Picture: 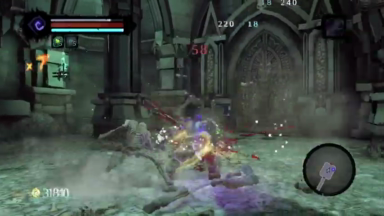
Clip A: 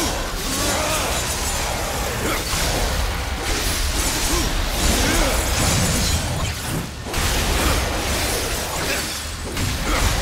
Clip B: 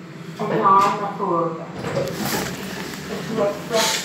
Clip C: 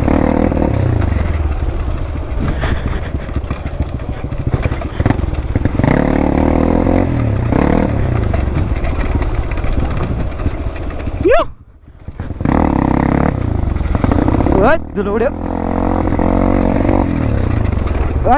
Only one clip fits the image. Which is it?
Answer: A